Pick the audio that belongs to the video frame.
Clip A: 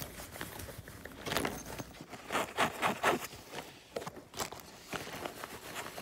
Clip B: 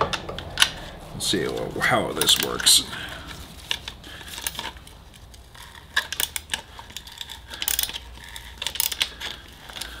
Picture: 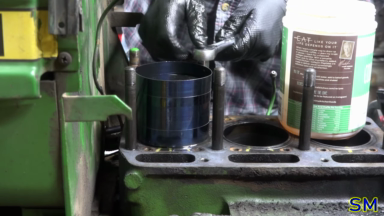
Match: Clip B